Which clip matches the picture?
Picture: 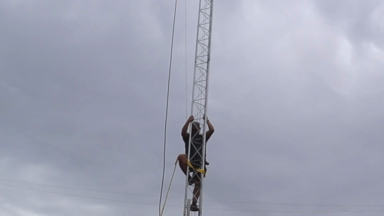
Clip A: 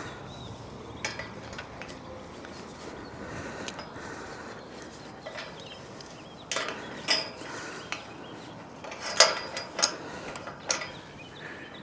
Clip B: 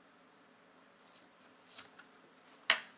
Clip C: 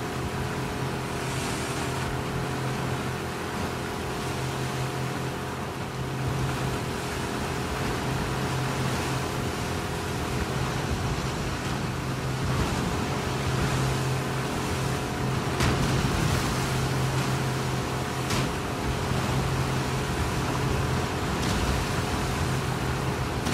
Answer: A